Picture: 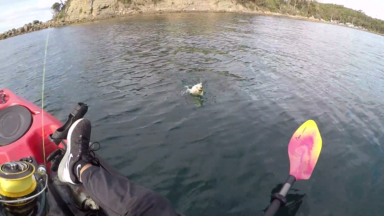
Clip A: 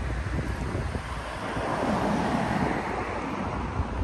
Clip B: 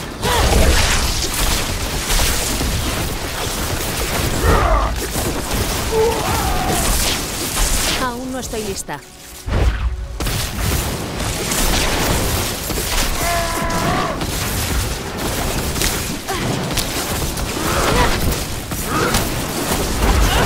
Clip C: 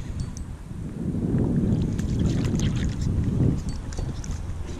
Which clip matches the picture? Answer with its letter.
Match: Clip C